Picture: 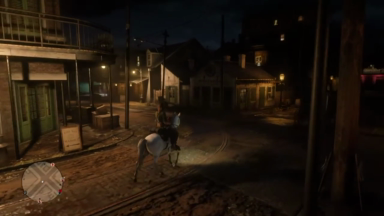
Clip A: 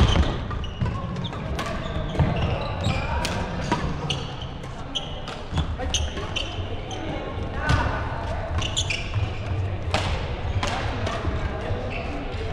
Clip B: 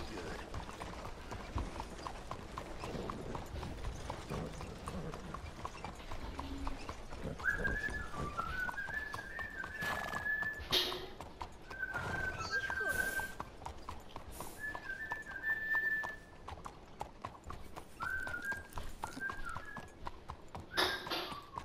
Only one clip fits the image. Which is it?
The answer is B